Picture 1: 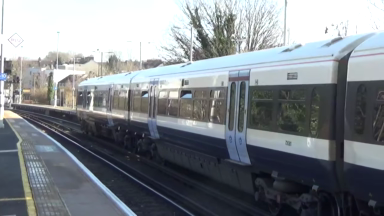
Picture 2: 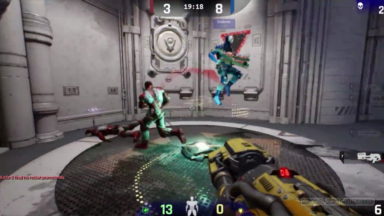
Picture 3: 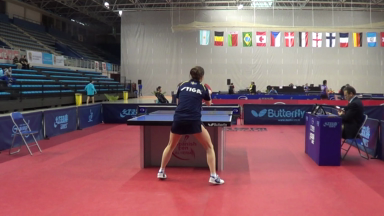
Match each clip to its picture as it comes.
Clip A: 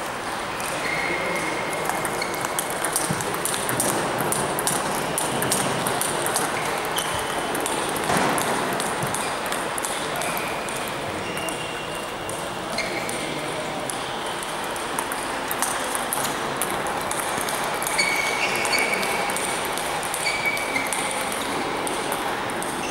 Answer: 3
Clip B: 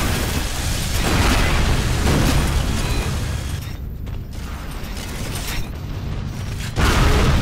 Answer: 2